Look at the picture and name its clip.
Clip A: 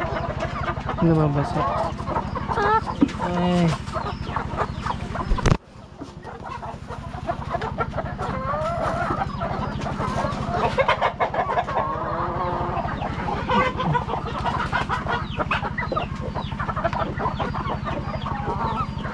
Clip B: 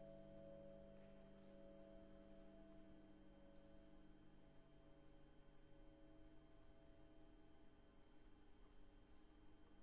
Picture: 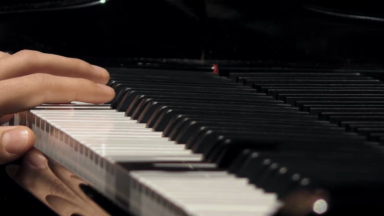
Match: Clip B